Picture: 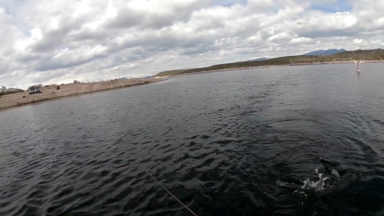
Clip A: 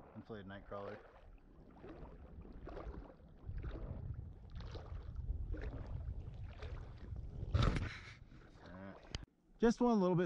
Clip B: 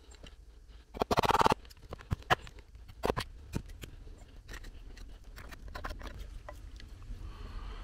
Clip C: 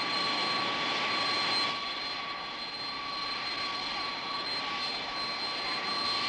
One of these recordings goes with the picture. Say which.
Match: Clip A